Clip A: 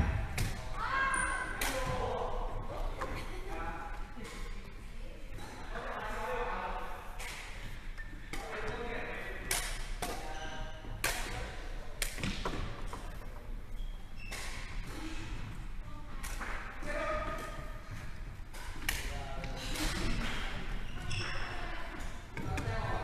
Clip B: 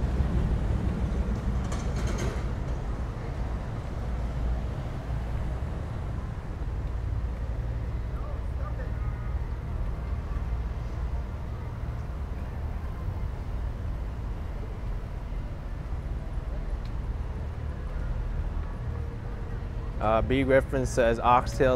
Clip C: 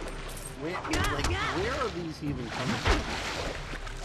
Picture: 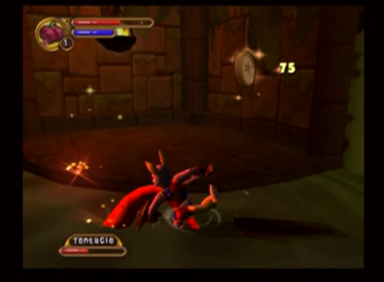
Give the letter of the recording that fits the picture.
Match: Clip C